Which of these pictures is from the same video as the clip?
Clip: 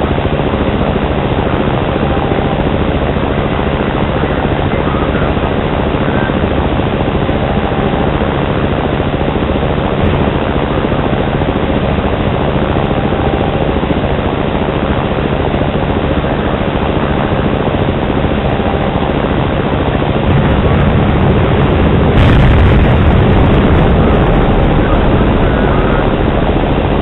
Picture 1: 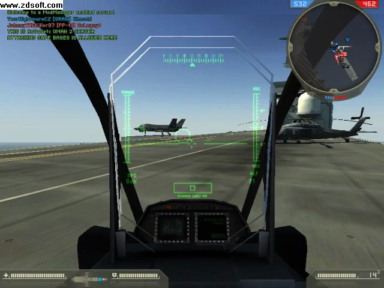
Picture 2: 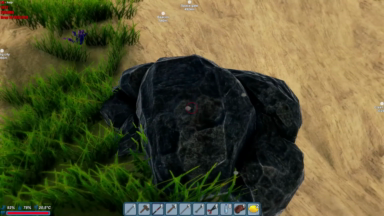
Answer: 1